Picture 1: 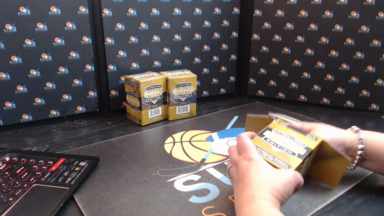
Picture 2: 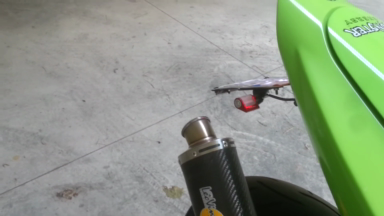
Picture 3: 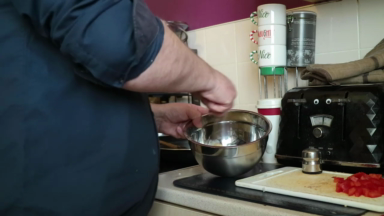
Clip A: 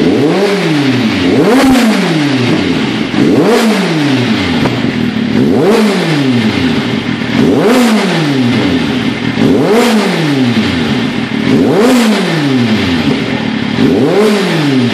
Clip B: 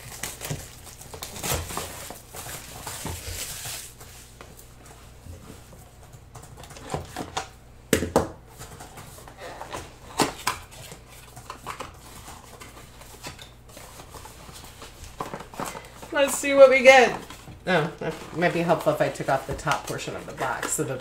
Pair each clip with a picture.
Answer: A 2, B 1